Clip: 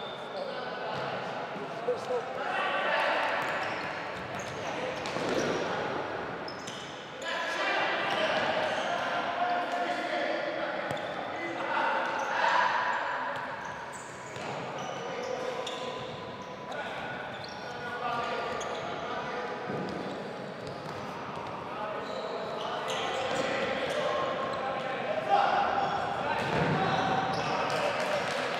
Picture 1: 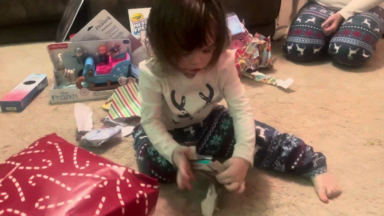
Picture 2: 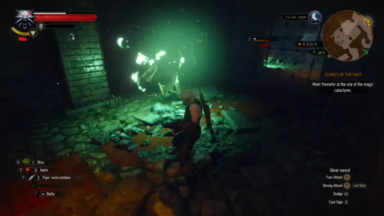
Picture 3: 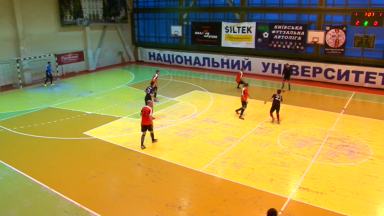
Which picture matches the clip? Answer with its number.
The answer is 3